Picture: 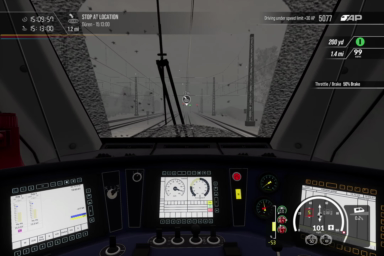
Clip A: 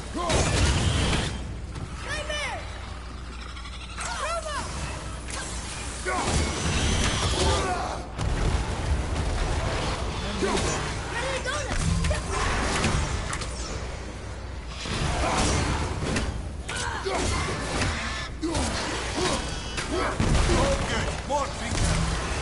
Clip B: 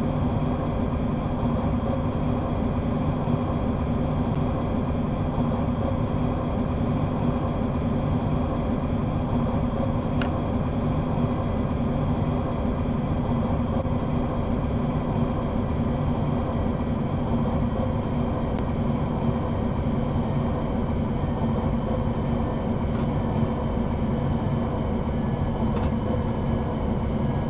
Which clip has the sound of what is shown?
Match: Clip B